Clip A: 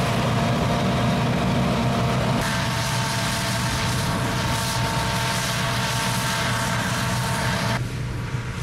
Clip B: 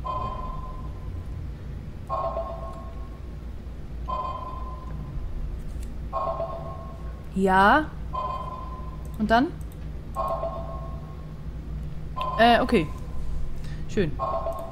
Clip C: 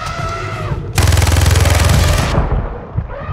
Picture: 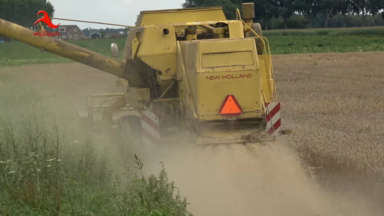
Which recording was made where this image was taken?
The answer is A